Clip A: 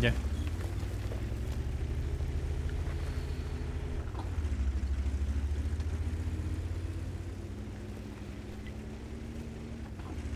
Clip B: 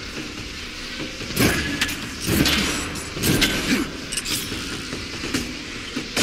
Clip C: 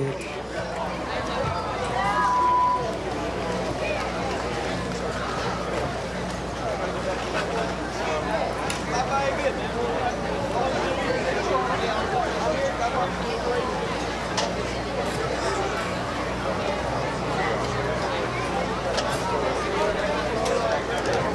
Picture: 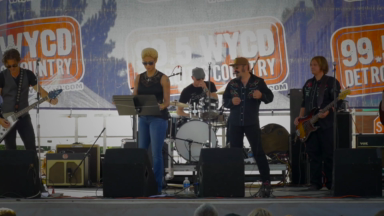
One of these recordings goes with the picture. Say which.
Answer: C